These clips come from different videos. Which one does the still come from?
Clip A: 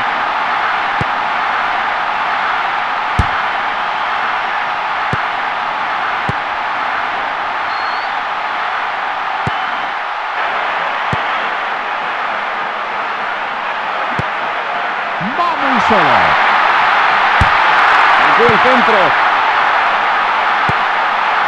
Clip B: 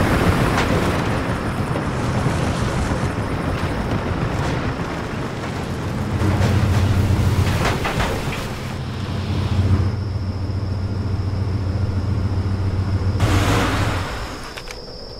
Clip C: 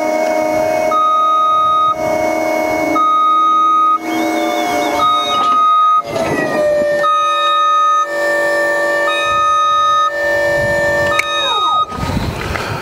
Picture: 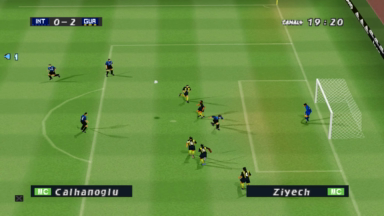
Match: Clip A